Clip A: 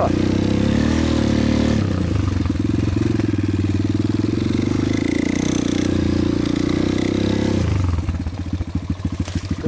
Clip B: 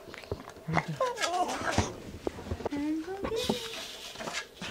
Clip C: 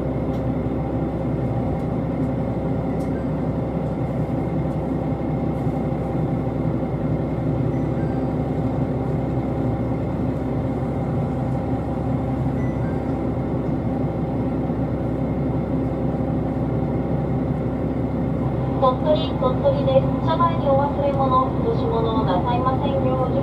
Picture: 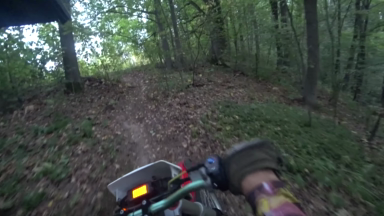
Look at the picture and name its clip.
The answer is A